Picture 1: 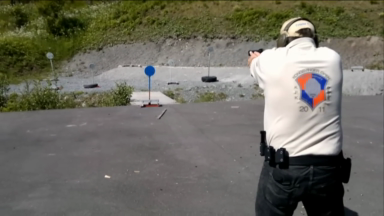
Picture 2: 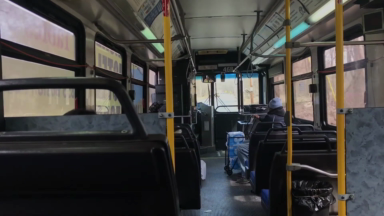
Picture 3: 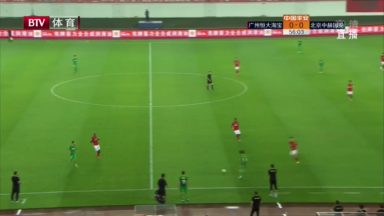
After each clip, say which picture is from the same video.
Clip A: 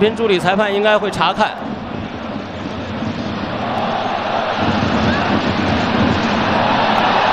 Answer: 3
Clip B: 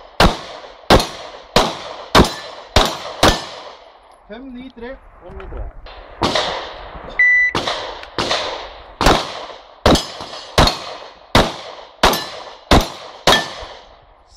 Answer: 1